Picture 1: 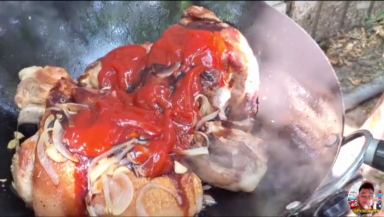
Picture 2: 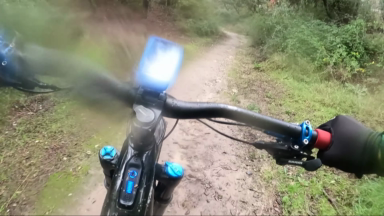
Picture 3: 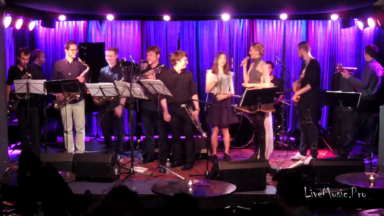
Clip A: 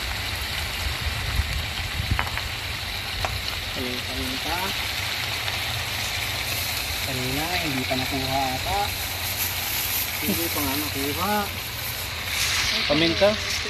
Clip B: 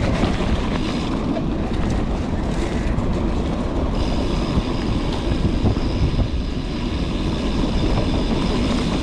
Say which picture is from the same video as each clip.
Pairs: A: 1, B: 2